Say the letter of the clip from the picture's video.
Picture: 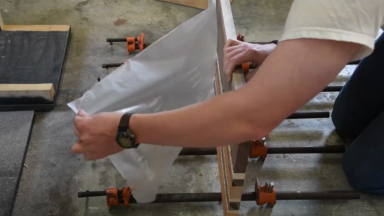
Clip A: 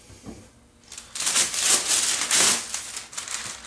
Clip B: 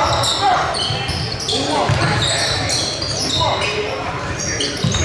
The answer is A